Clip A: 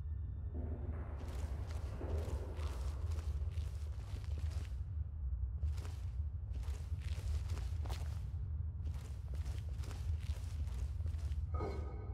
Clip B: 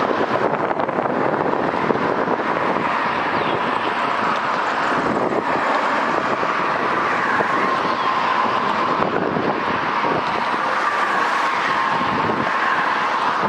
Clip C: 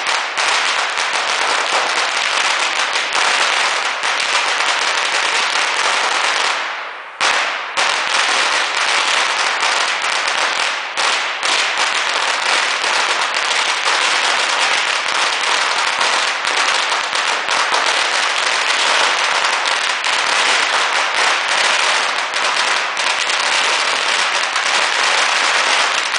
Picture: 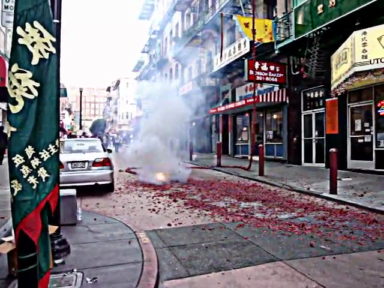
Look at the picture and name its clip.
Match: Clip C